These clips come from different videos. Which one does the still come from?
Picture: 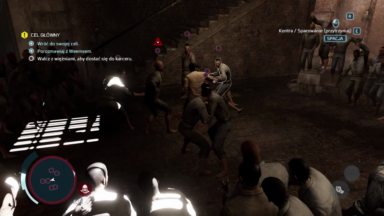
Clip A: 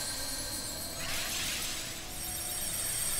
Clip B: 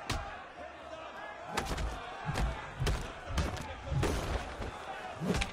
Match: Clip B